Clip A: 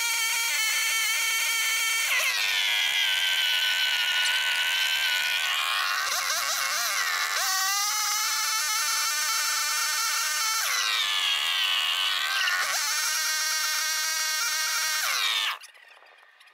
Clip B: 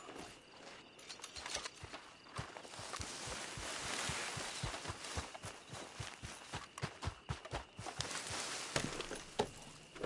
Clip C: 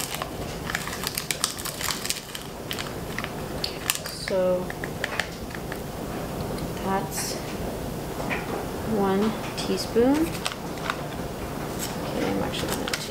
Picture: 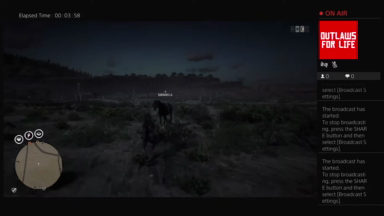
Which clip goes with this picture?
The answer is B